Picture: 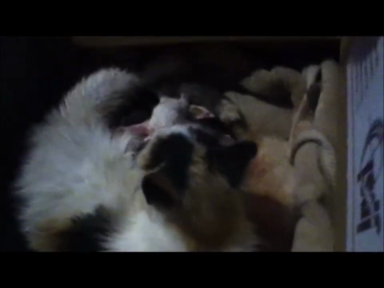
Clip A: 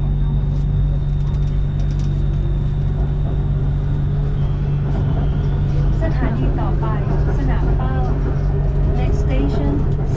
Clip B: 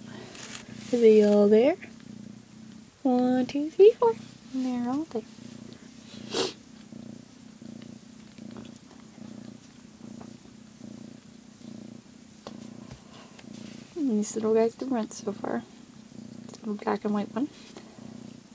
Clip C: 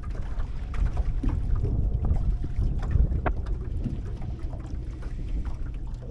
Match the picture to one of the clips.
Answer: B